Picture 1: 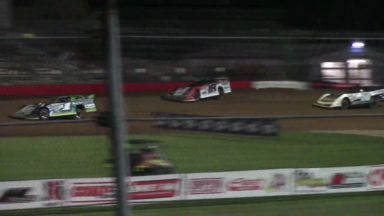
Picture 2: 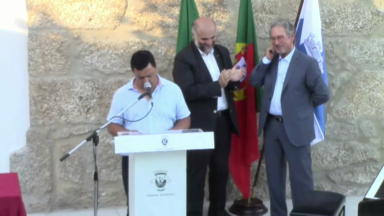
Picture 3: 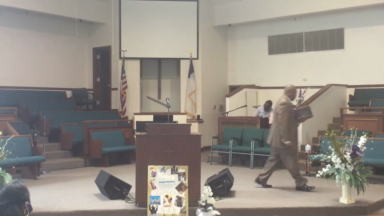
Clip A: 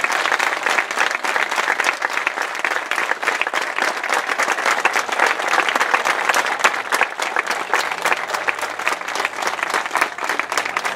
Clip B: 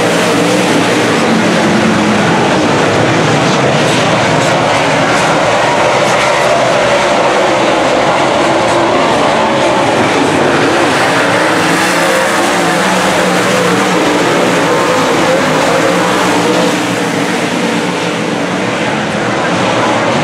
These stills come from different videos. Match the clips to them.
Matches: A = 2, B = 1